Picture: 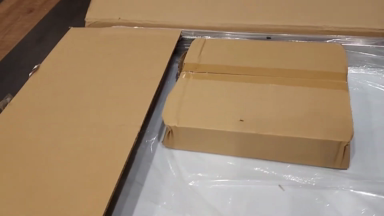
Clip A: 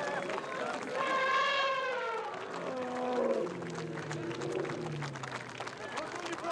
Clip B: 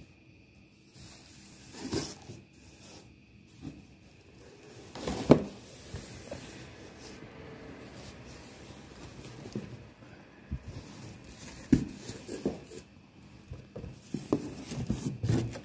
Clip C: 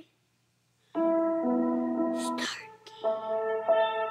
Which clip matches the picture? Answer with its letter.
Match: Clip B